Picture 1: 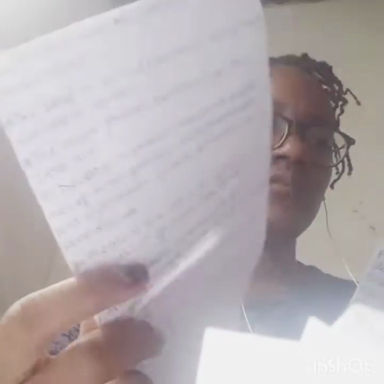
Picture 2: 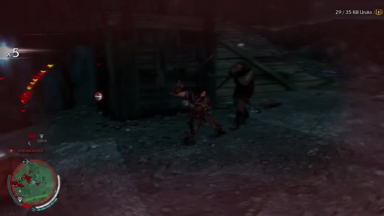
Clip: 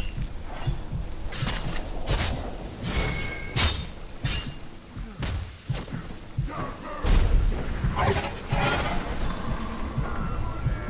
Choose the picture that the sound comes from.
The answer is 2